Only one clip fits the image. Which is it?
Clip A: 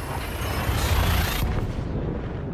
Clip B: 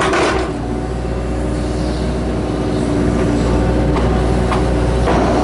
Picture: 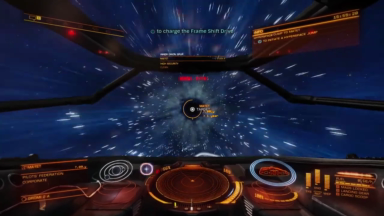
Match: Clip A